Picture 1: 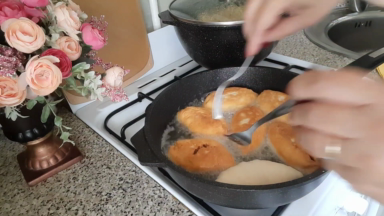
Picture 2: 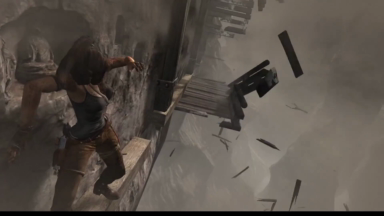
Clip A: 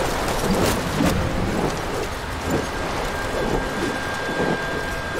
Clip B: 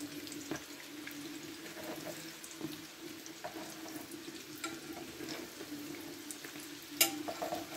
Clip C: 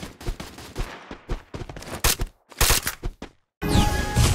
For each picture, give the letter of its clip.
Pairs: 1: B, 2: A